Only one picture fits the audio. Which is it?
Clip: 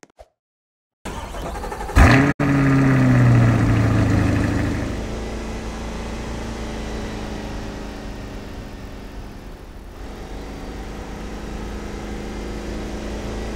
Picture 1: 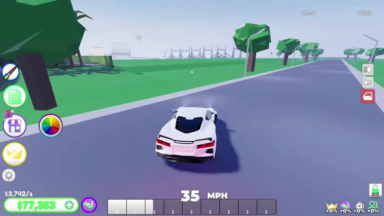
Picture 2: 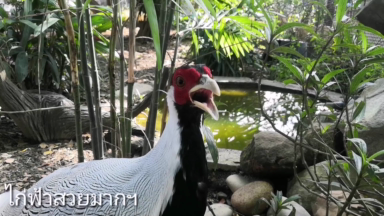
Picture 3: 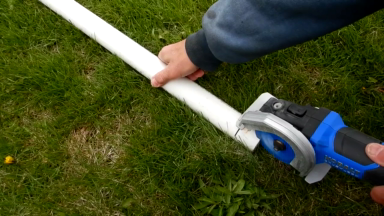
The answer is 1